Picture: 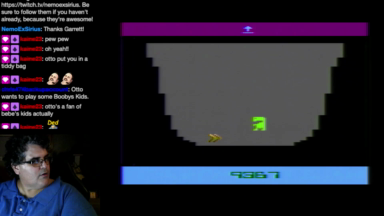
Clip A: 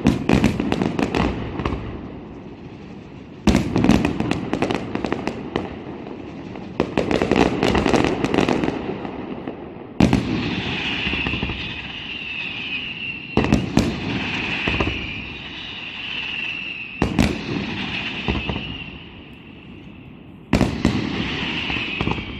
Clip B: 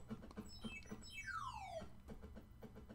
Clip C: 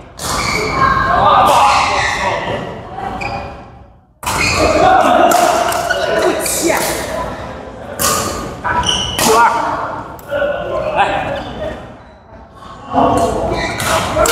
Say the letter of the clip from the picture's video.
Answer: B